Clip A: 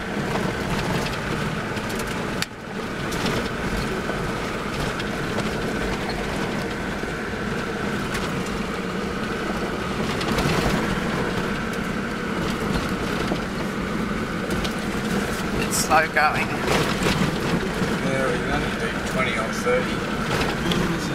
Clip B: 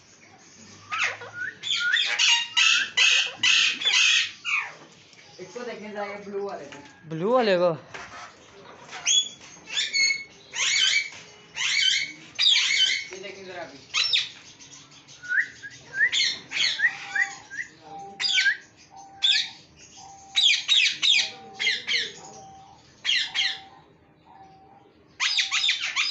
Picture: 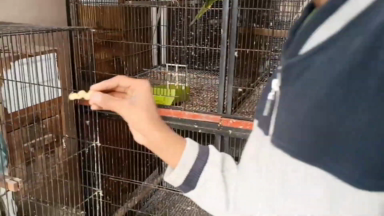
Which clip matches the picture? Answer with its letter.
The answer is B